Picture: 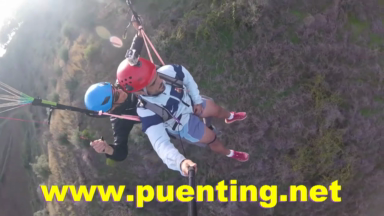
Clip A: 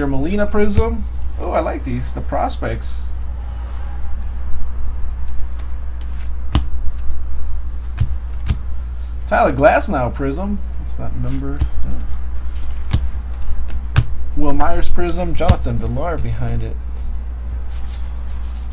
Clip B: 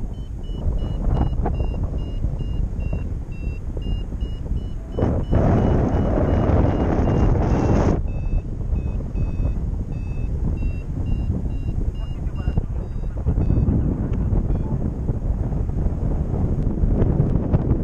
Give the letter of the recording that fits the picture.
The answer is B